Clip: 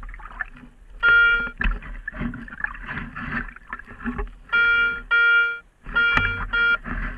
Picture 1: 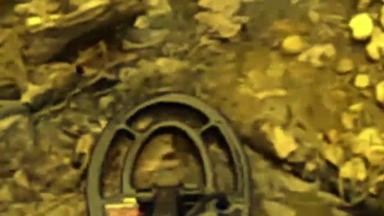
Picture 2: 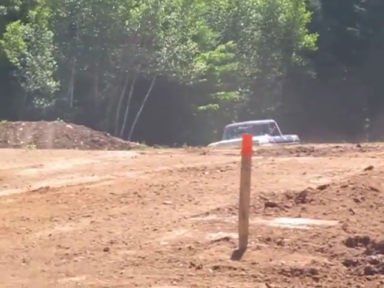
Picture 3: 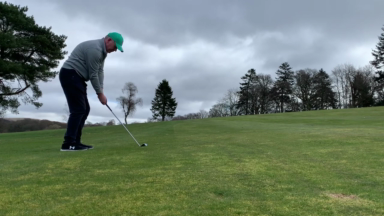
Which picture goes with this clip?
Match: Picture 1